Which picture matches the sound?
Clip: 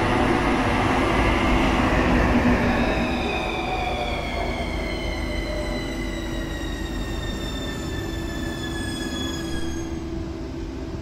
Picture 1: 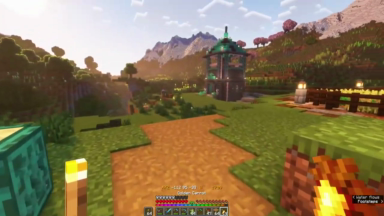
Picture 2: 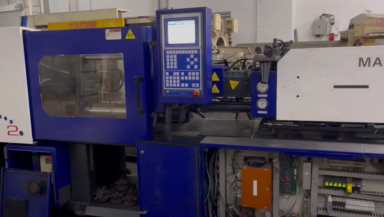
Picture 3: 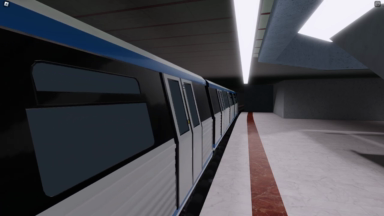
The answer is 3